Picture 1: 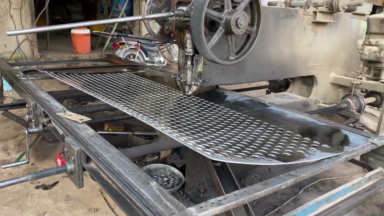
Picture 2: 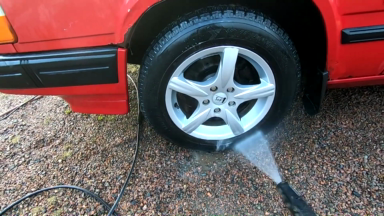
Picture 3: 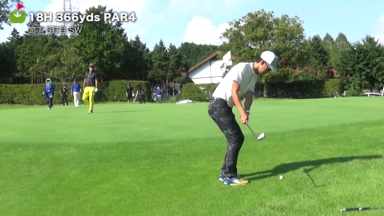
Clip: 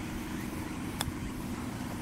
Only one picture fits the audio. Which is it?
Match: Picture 3